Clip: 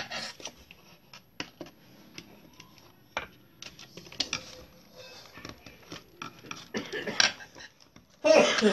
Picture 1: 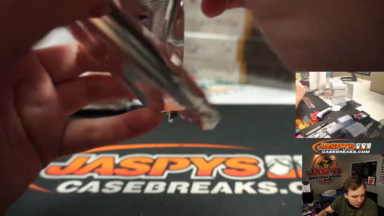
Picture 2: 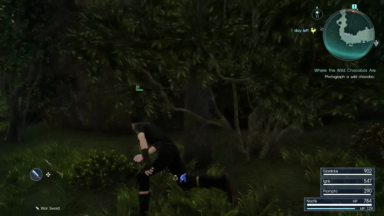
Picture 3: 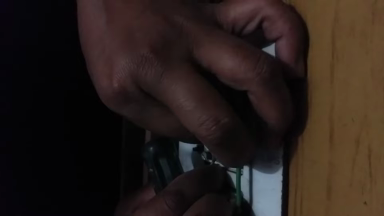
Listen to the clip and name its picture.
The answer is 3